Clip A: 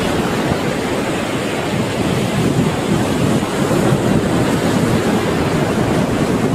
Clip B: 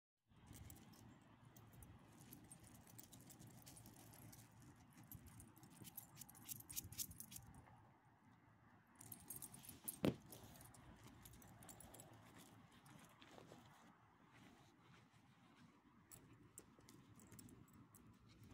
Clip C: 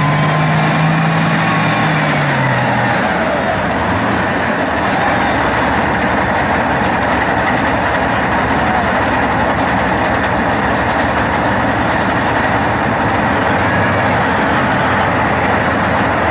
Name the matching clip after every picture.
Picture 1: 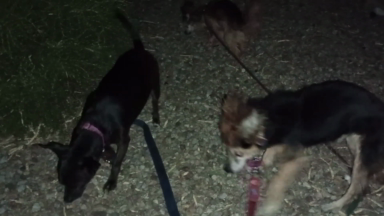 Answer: B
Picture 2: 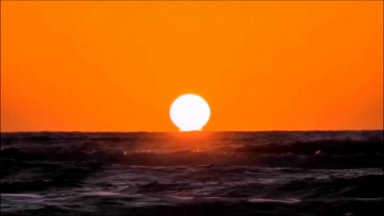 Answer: A